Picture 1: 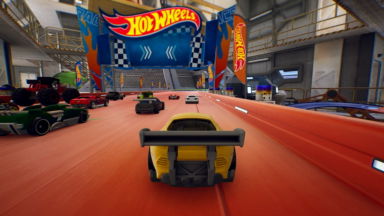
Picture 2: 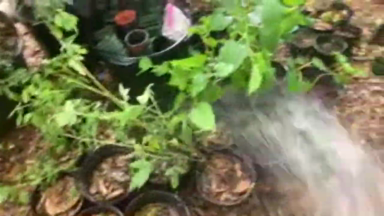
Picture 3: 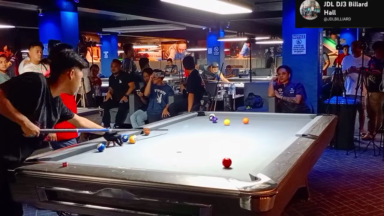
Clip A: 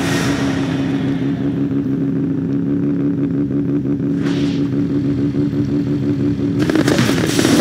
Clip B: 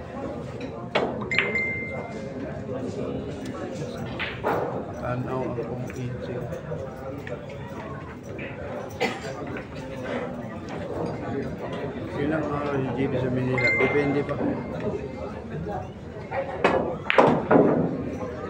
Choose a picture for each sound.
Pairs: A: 1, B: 3